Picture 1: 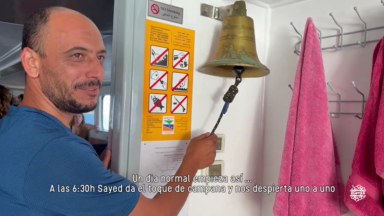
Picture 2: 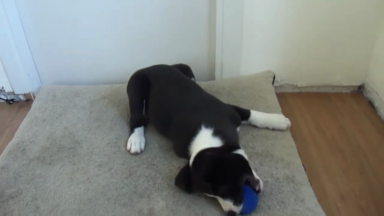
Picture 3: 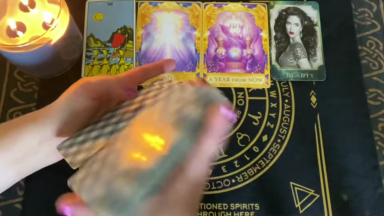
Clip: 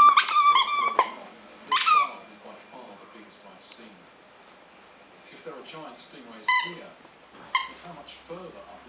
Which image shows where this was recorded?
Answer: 2